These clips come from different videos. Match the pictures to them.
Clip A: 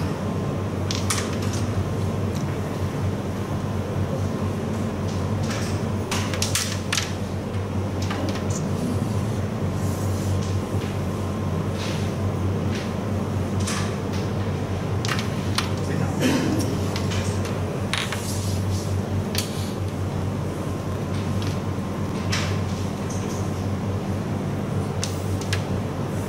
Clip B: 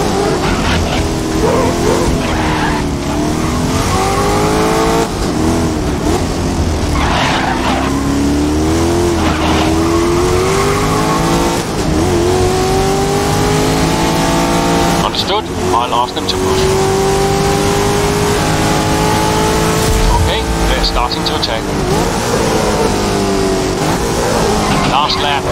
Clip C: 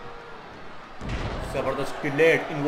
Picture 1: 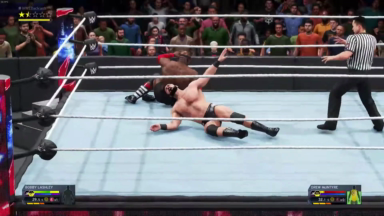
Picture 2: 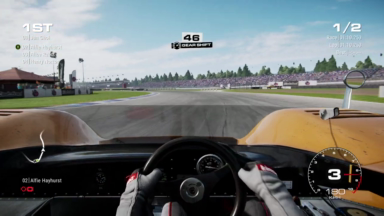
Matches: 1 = C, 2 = B